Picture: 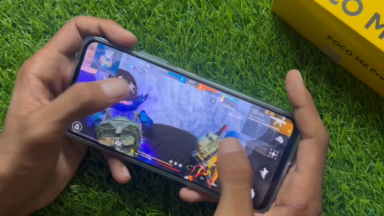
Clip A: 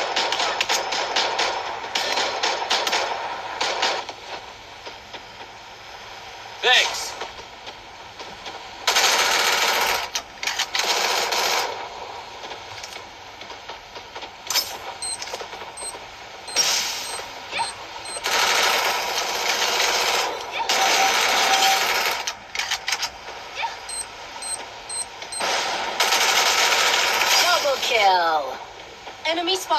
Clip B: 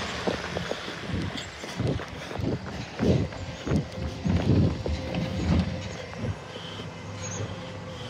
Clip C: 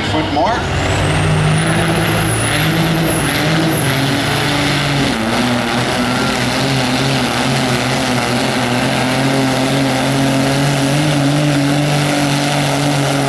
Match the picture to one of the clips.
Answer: A